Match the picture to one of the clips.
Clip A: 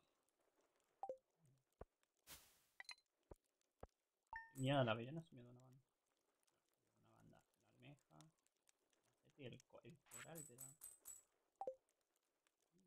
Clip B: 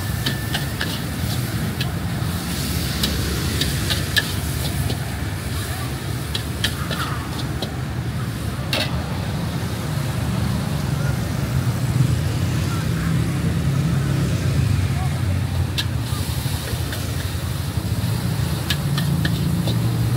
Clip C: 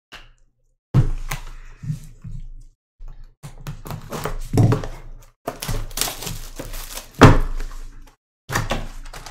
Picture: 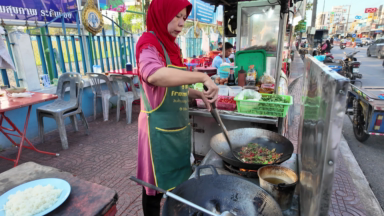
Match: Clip B